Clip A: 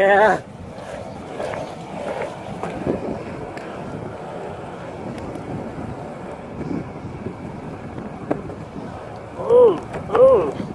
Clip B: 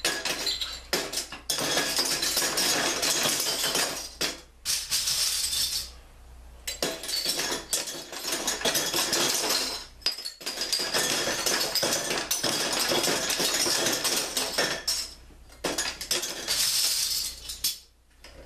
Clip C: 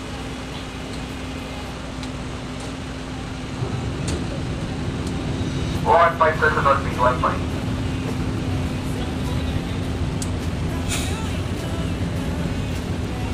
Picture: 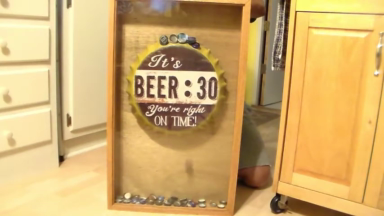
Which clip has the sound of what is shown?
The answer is B